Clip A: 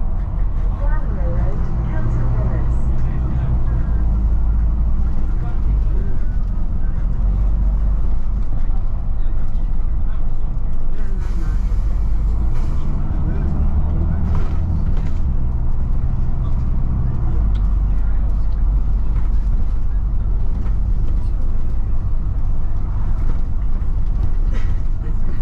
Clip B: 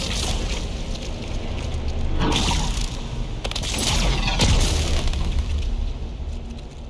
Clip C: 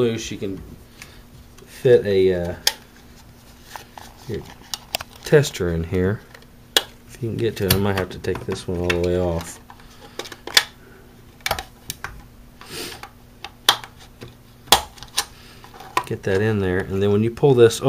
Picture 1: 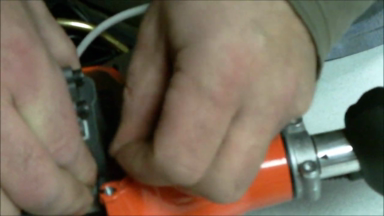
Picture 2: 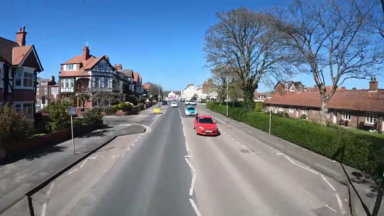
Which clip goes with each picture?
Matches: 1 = C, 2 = A